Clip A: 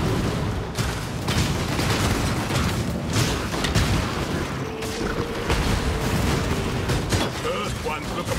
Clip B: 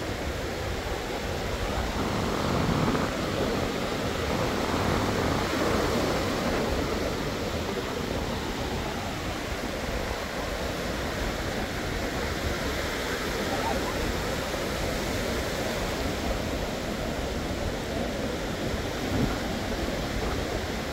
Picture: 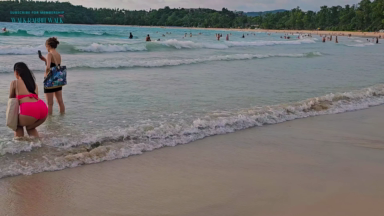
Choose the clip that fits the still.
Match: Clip B